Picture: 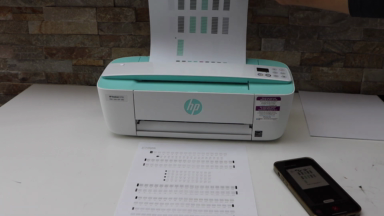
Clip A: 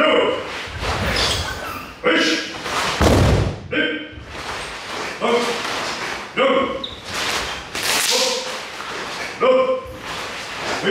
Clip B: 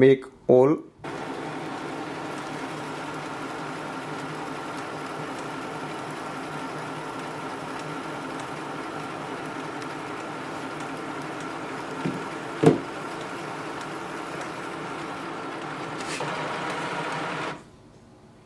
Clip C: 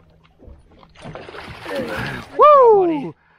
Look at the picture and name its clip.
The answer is B